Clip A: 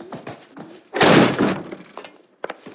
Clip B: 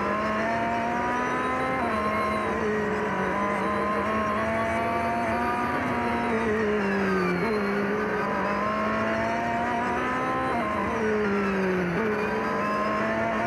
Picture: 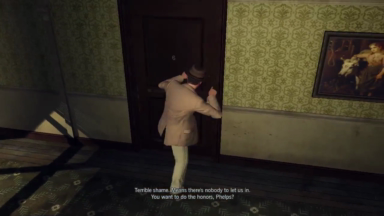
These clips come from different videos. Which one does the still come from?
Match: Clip A